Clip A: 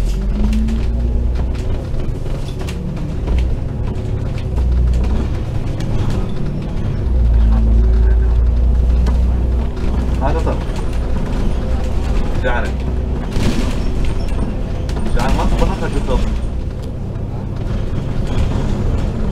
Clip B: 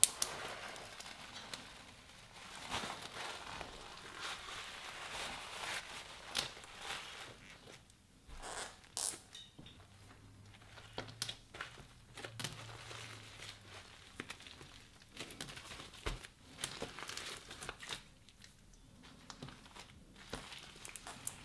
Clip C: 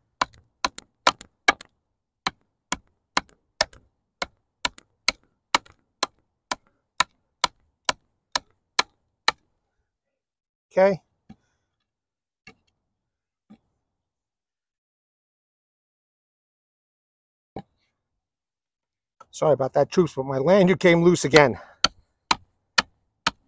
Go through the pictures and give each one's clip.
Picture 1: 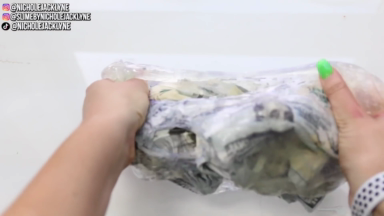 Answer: B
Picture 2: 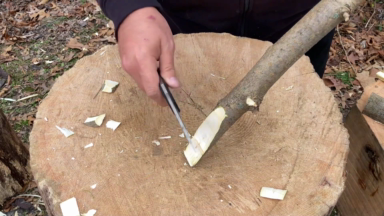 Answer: C